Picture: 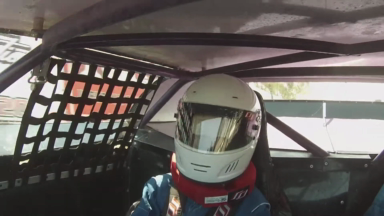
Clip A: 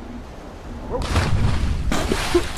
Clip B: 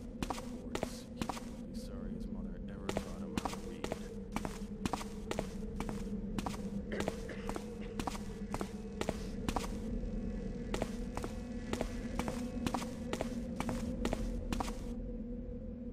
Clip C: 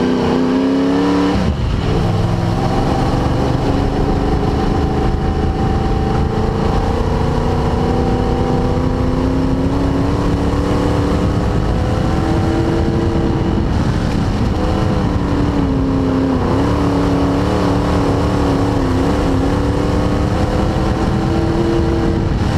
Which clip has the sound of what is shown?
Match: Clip C